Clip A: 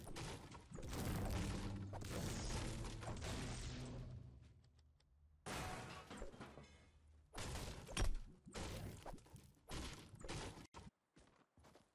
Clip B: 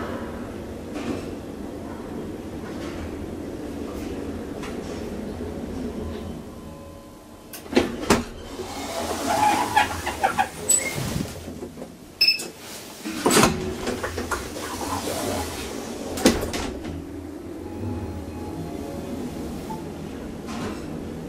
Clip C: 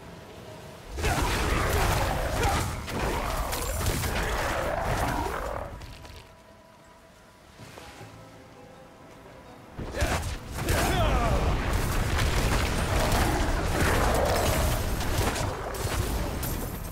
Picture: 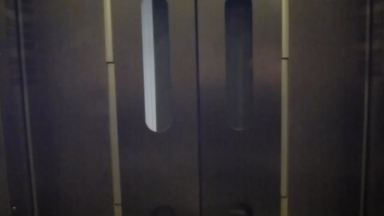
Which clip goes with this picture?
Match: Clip B